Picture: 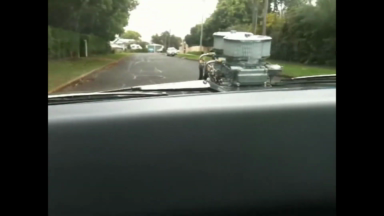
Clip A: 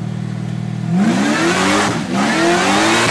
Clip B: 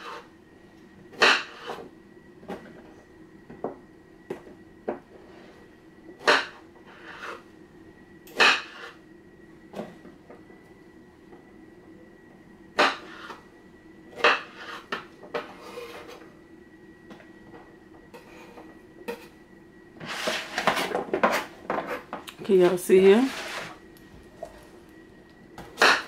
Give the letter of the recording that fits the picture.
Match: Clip A